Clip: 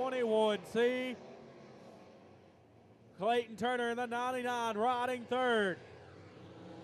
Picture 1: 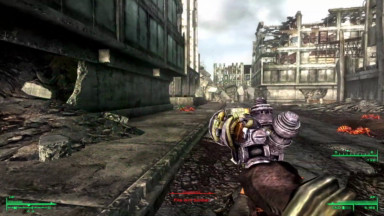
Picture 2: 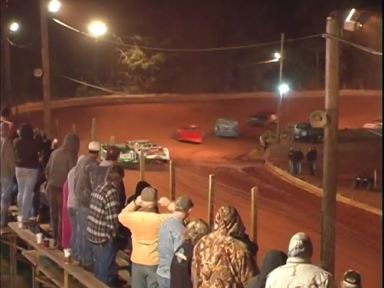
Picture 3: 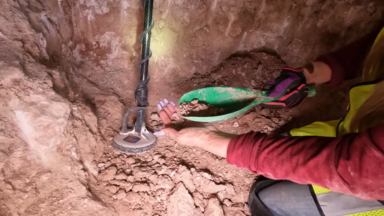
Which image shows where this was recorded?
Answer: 2